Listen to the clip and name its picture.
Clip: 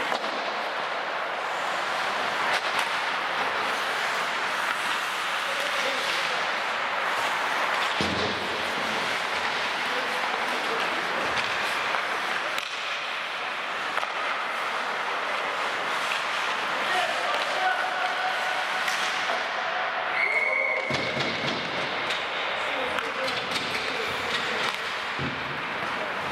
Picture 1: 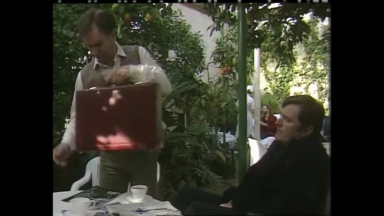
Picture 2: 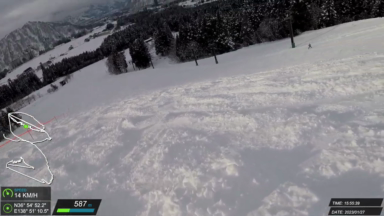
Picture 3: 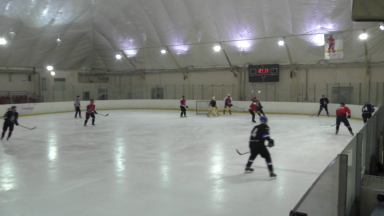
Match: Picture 3